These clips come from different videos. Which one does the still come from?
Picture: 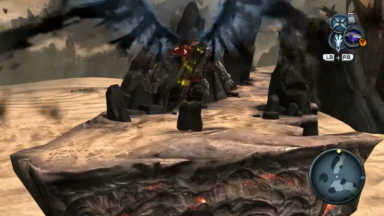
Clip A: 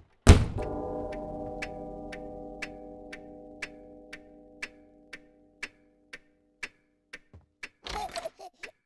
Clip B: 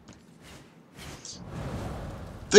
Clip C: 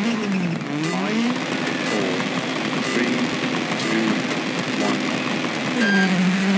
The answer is B